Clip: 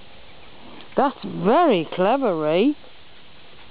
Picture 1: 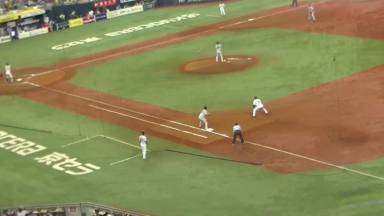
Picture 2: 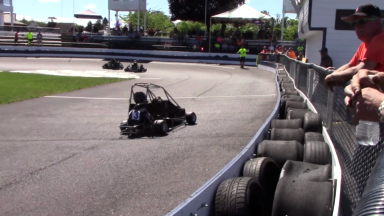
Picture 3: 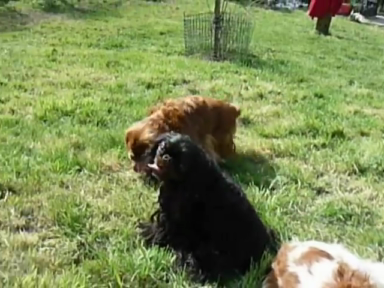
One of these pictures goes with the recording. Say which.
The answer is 3